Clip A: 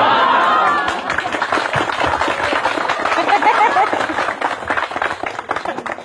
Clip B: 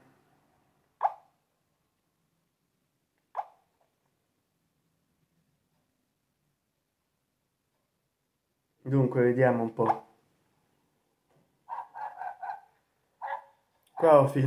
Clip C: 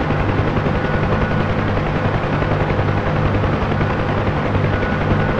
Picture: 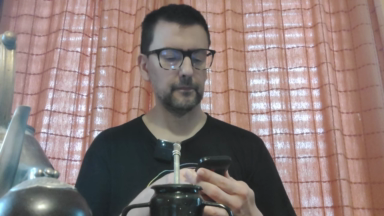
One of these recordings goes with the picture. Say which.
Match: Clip B